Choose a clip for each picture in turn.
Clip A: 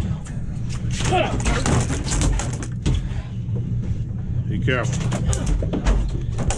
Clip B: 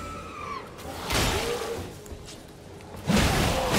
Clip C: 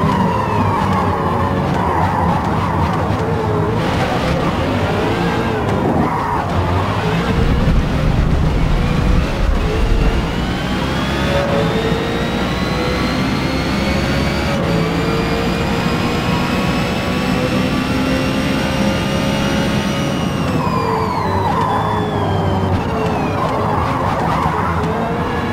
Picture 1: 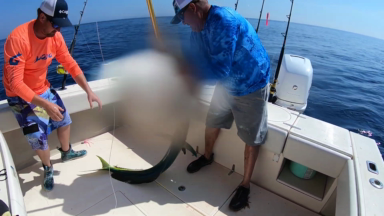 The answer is A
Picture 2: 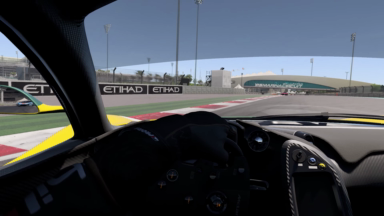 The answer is C